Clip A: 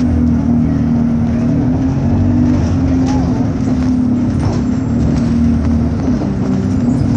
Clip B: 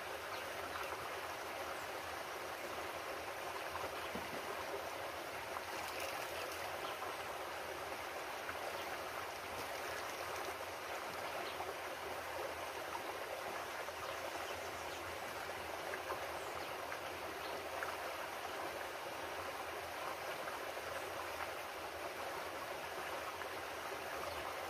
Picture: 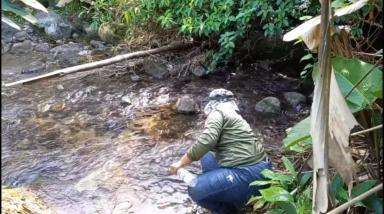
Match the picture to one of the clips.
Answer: B